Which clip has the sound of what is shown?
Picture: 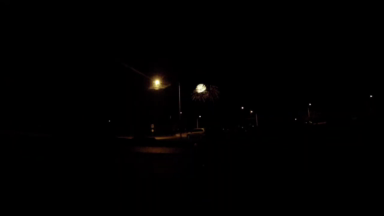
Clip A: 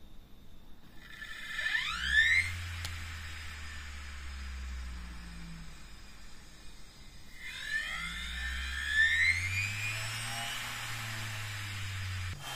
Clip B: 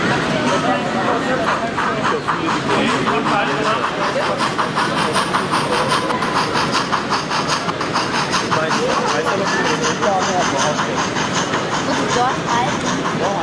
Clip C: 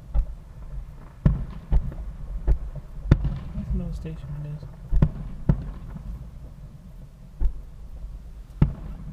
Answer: C